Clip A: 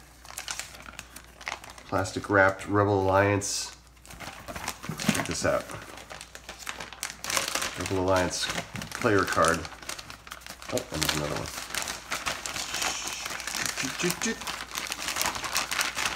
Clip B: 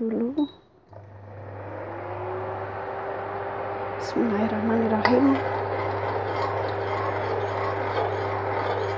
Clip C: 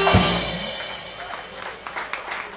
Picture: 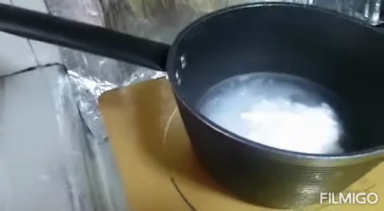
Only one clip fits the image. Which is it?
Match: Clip B